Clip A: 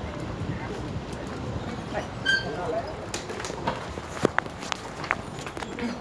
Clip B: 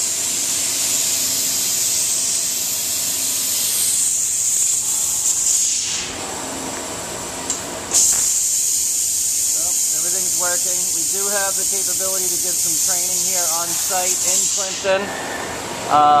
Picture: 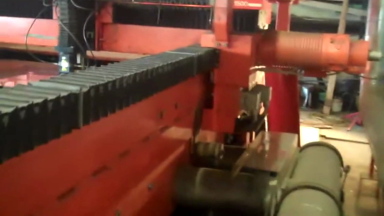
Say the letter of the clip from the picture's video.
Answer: B